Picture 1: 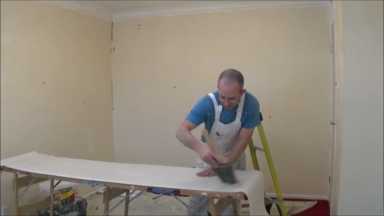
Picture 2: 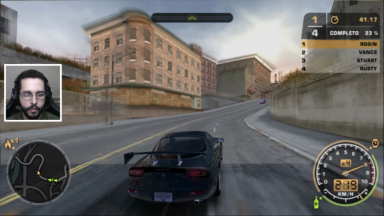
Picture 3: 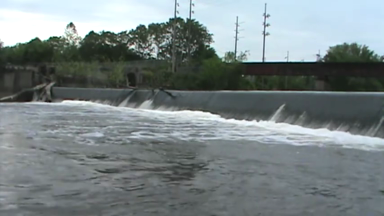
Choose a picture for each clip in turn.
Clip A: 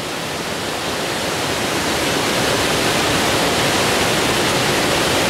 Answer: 3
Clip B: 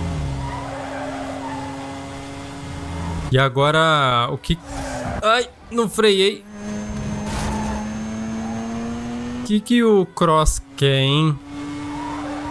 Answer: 2